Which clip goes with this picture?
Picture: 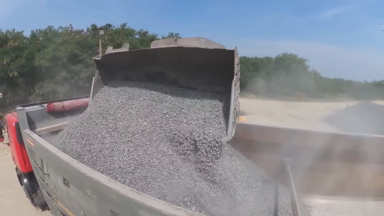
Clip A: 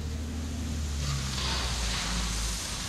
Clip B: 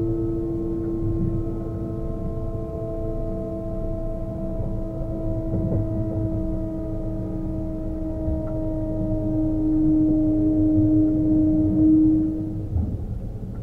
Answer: A